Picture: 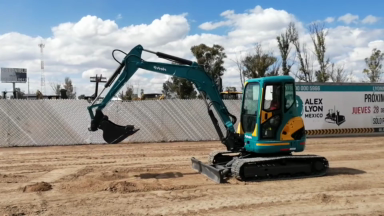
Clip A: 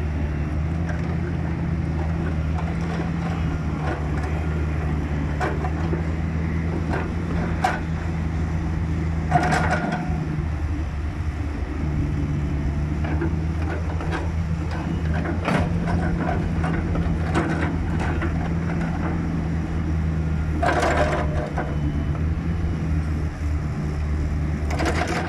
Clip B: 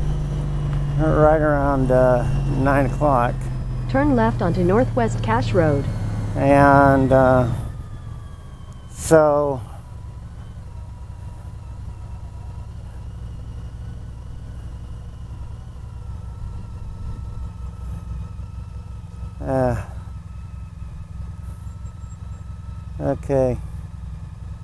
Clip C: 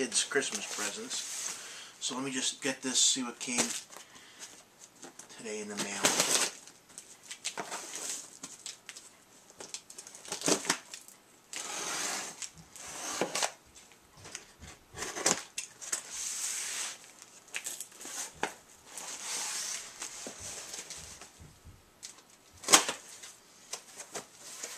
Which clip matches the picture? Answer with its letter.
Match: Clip A